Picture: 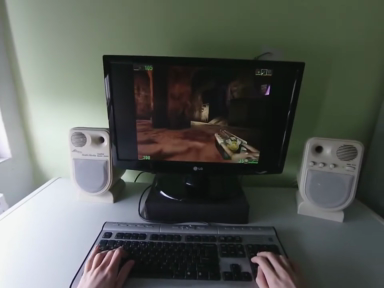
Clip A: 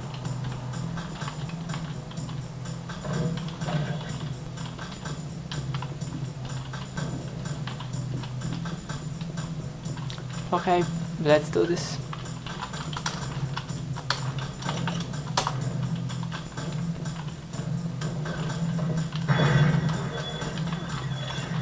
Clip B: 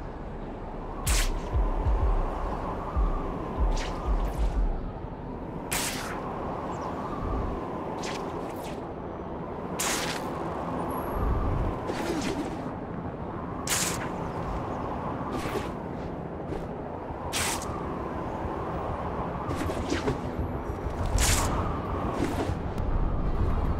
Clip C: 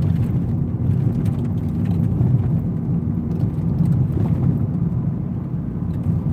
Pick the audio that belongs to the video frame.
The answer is A